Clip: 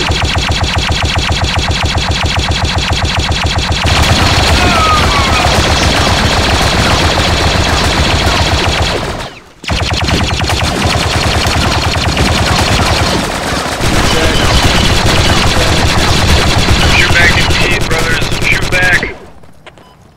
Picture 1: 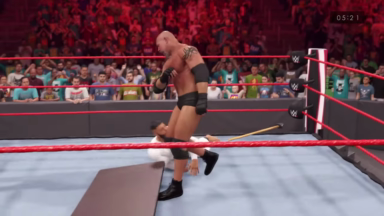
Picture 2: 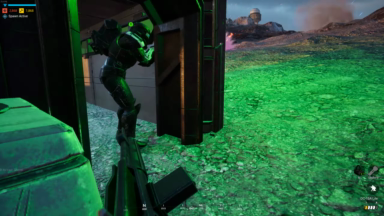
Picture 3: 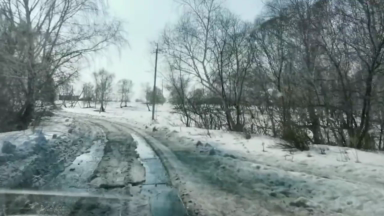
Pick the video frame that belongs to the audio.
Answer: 2